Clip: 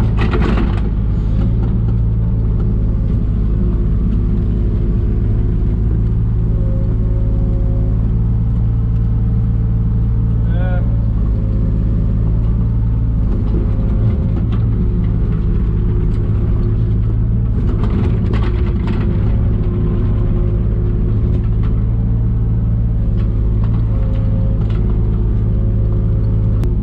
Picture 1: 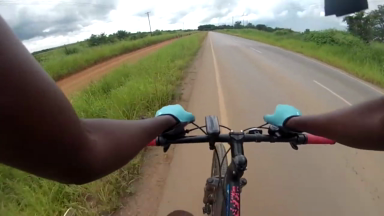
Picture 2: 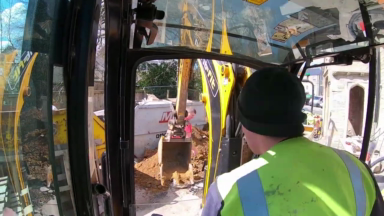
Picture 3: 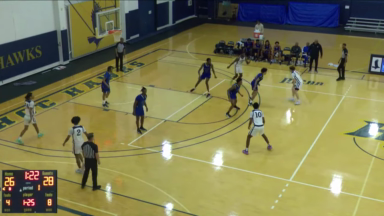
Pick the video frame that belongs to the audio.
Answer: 2